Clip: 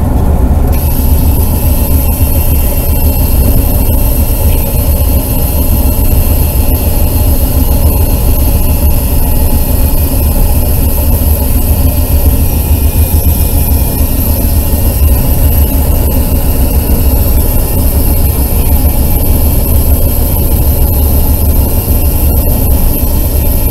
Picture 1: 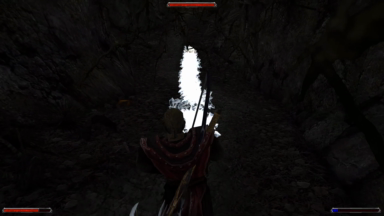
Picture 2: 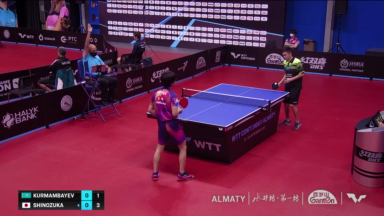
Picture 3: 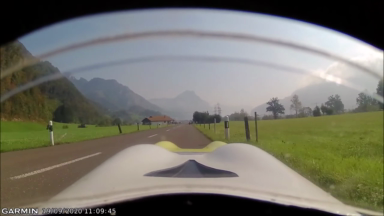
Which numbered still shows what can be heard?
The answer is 3